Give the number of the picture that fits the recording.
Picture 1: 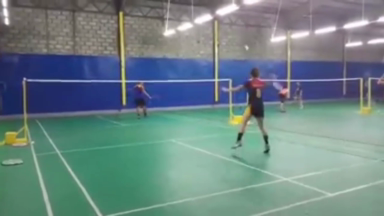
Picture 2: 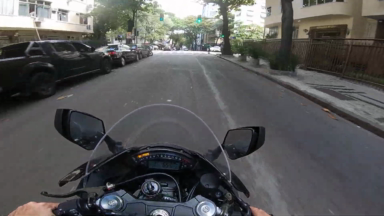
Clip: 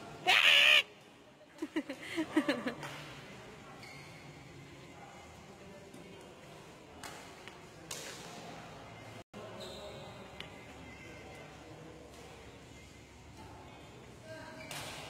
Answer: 1